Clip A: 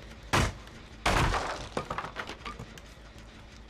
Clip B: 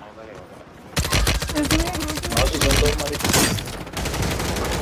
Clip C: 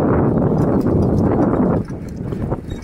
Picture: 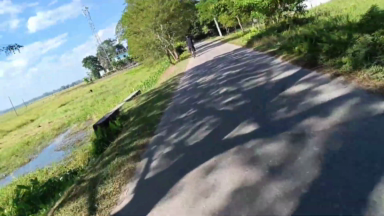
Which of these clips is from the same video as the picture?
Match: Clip C